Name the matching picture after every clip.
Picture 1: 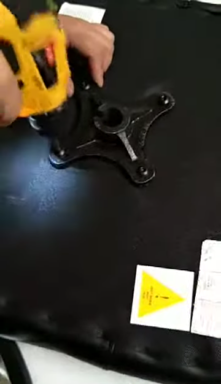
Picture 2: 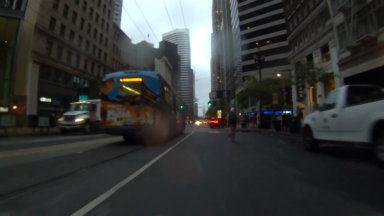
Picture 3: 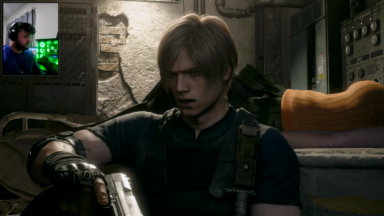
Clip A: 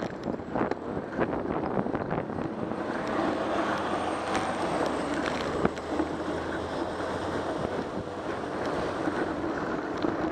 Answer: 2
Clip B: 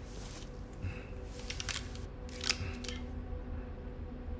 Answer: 3